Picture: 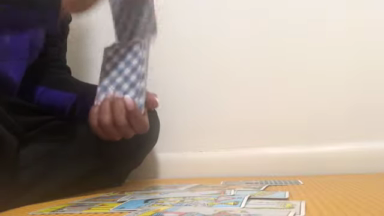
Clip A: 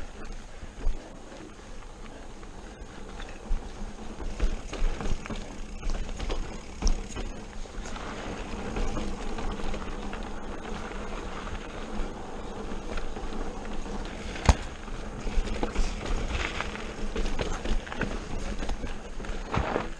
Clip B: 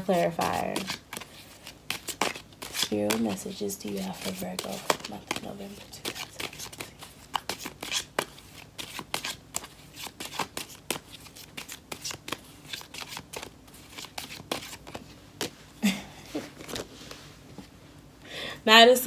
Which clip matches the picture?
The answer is B